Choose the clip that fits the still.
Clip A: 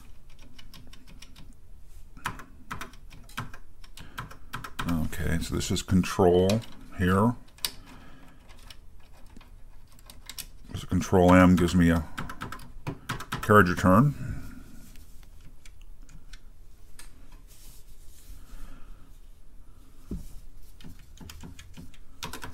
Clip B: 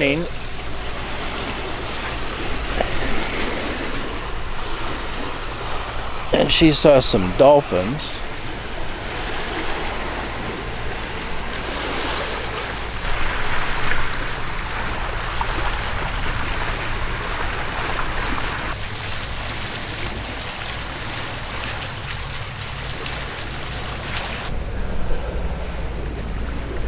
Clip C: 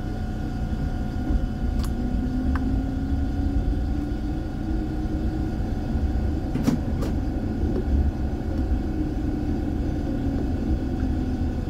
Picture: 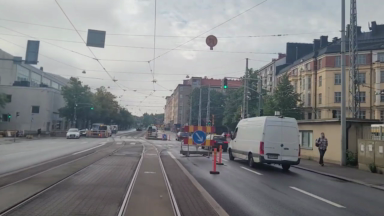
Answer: C